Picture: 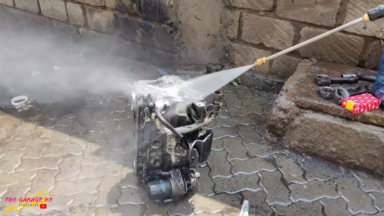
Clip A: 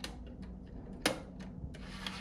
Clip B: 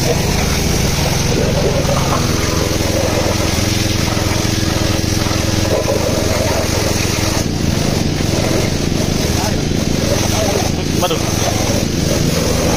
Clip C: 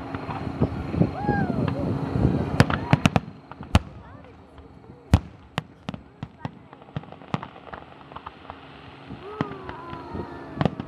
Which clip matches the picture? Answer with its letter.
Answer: B